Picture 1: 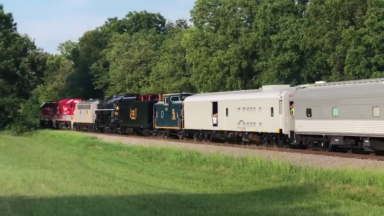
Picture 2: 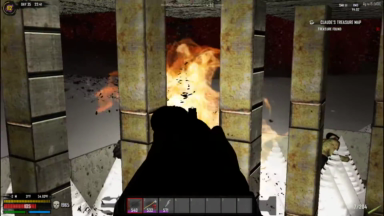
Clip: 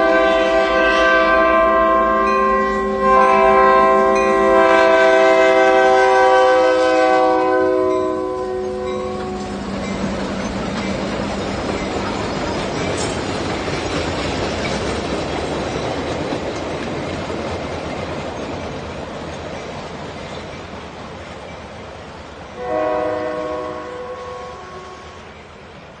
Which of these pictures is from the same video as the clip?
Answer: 1